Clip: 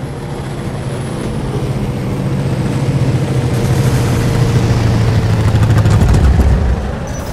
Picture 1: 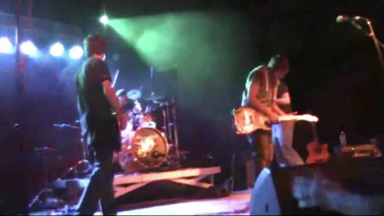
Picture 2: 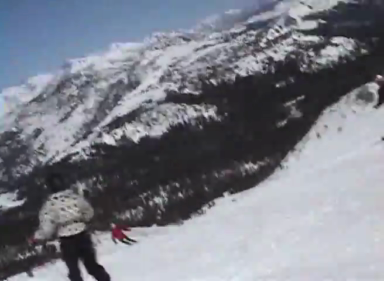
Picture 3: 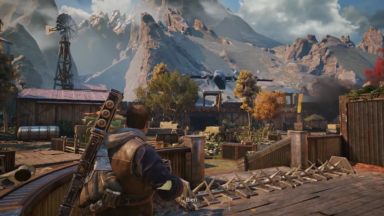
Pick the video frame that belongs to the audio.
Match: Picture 3